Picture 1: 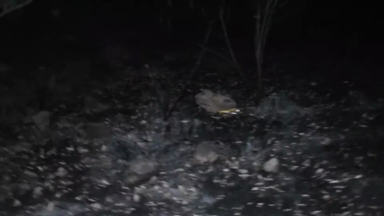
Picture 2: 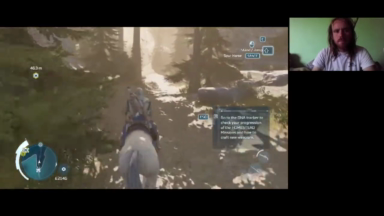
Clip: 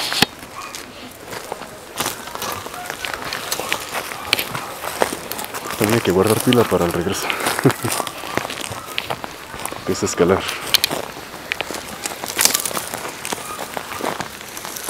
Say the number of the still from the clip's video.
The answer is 1